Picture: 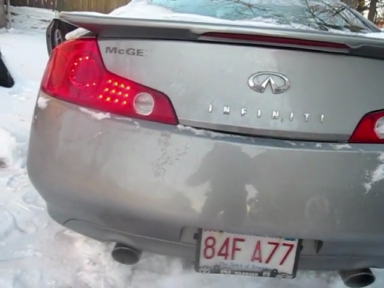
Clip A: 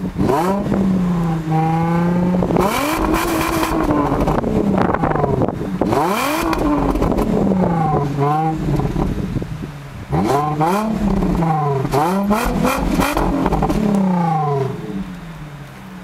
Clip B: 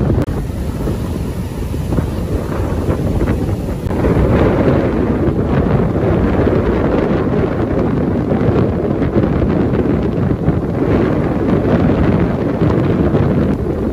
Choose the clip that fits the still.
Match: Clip A